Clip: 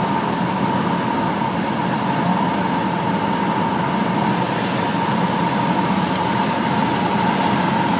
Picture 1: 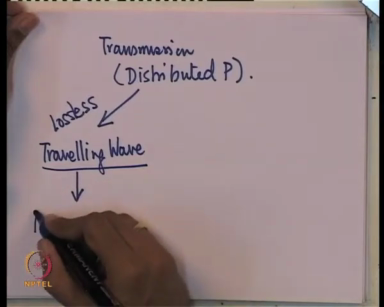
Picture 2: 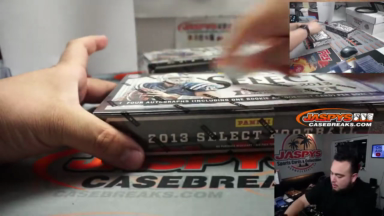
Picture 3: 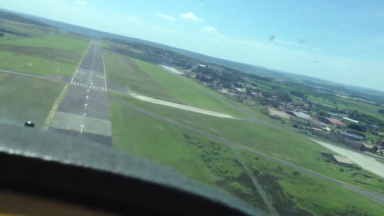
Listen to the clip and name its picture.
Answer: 3